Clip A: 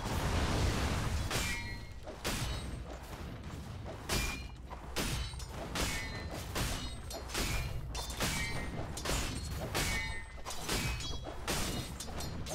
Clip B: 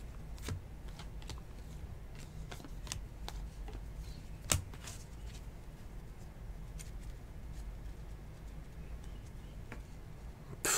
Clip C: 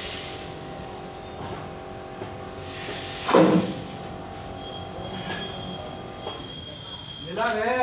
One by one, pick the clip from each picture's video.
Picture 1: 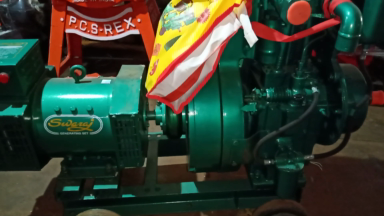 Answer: C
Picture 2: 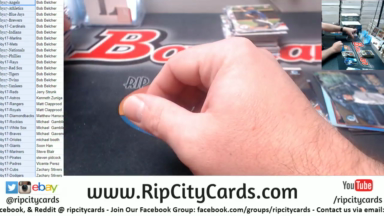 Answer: B